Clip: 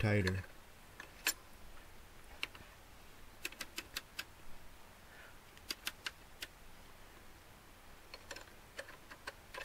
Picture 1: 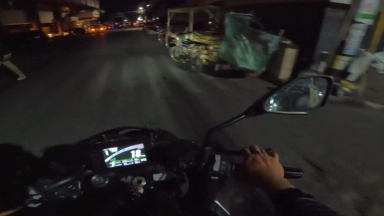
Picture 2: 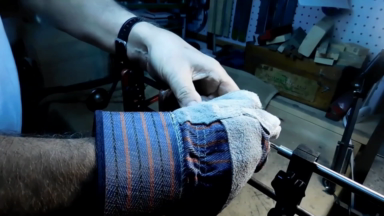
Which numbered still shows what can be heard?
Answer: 2